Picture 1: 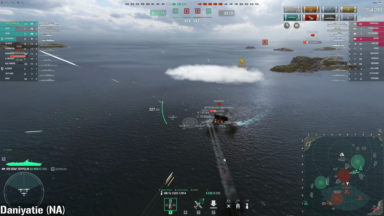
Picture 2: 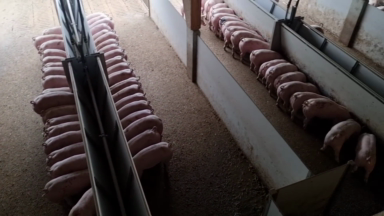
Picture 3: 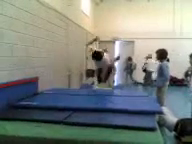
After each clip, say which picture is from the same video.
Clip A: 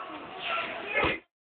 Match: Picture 3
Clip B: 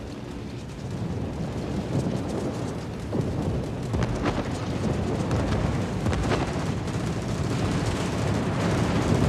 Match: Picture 1